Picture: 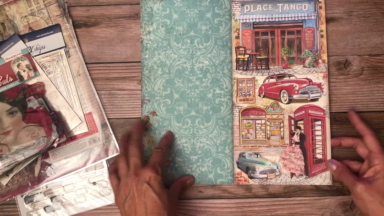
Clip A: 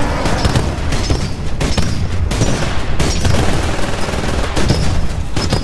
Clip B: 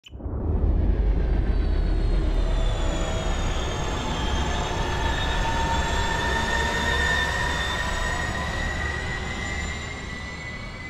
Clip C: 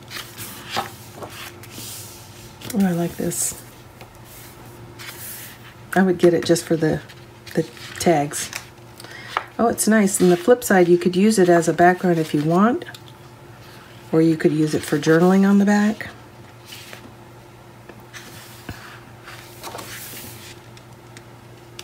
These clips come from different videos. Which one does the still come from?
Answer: C